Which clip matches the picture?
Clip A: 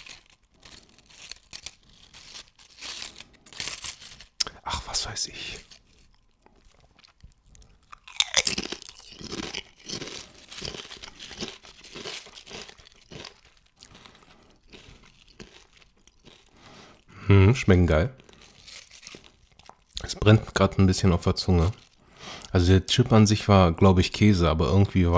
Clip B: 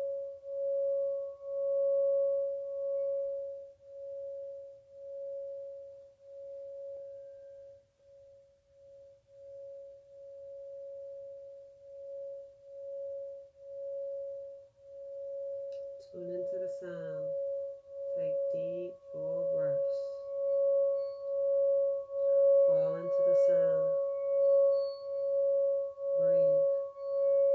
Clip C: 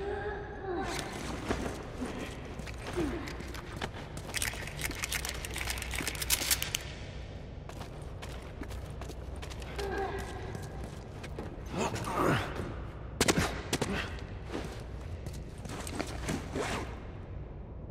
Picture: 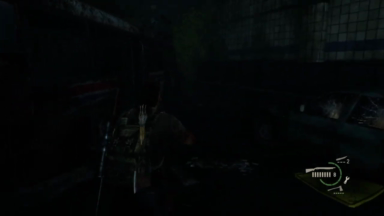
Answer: C